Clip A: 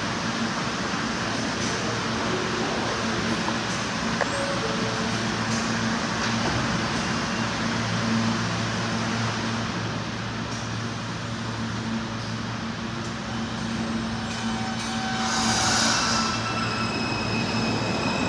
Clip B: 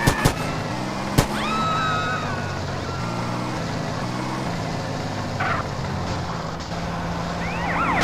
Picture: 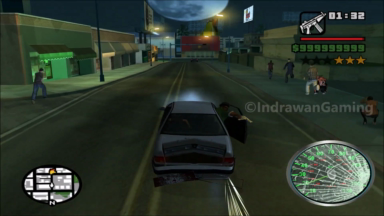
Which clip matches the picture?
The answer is B